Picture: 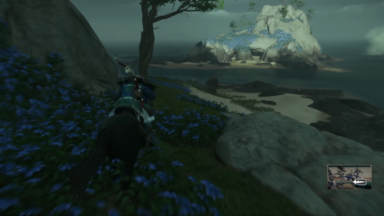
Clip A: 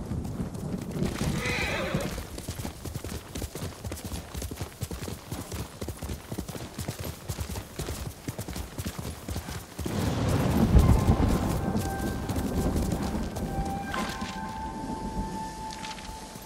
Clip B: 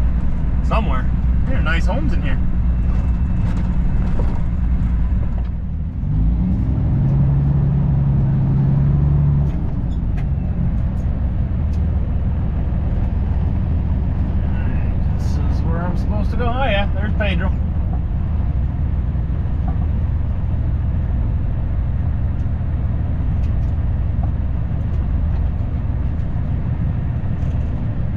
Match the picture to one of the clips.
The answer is A